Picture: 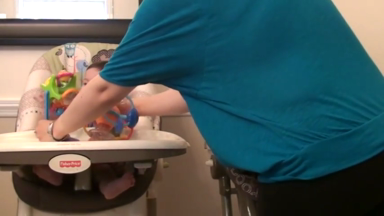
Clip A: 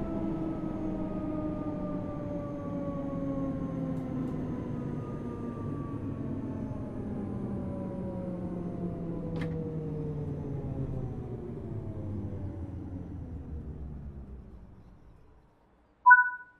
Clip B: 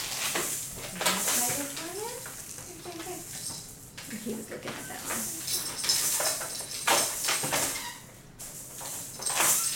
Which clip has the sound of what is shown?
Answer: B